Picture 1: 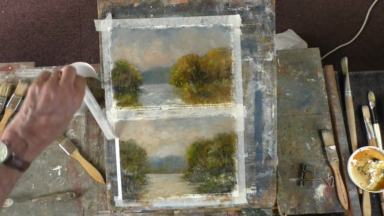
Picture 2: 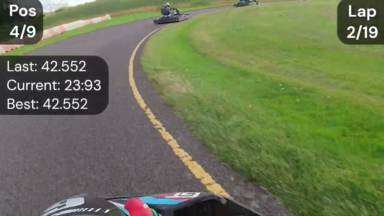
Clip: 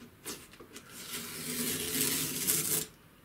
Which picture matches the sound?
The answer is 1